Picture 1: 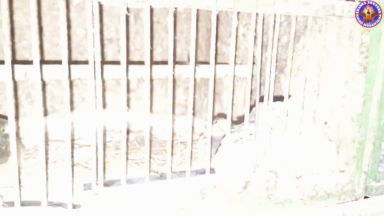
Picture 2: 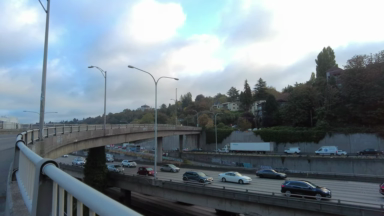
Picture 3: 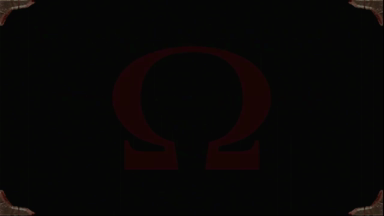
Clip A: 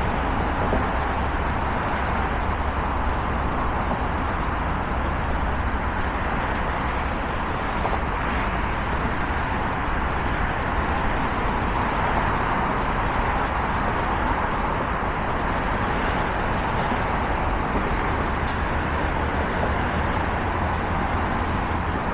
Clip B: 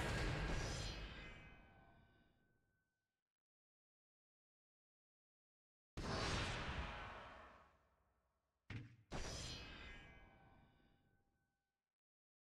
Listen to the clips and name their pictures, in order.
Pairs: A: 2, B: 3